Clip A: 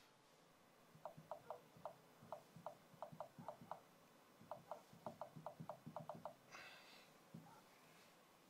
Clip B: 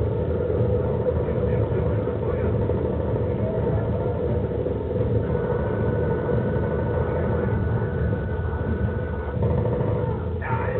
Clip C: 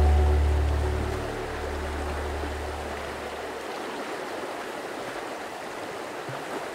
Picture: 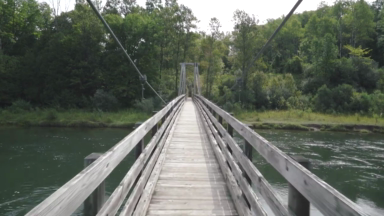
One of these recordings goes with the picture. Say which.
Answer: C